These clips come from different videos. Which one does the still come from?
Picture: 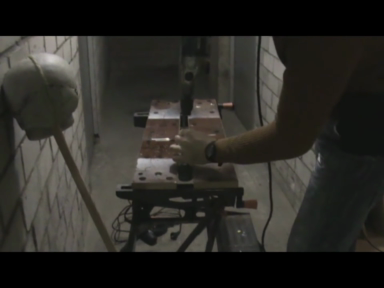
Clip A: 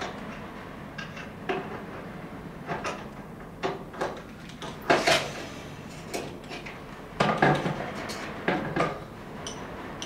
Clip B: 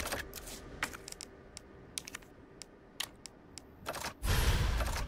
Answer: A